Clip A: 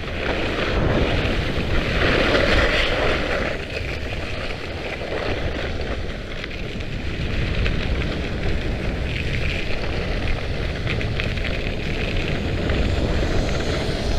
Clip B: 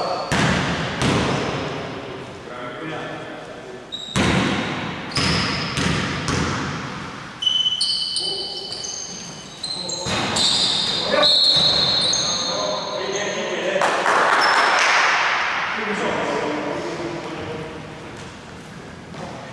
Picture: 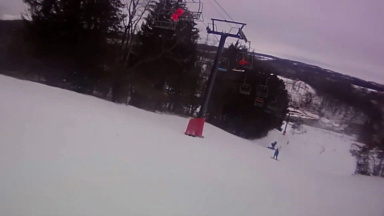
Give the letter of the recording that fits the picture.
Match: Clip A